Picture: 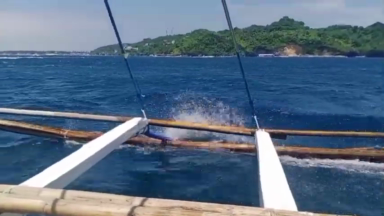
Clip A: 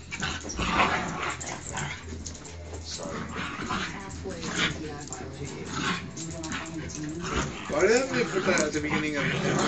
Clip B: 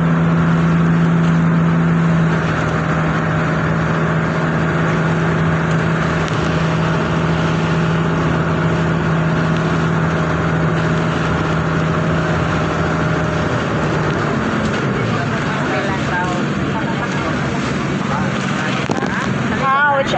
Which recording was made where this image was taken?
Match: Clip B